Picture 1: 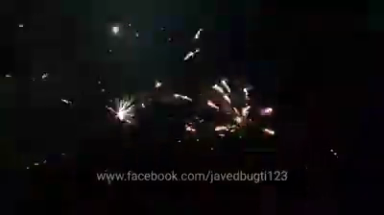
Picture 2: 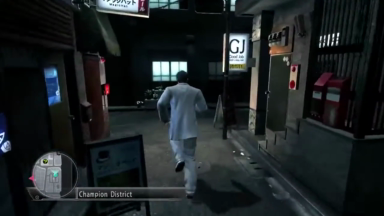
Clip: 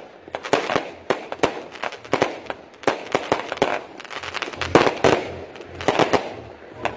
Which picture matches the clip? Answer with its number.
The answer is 1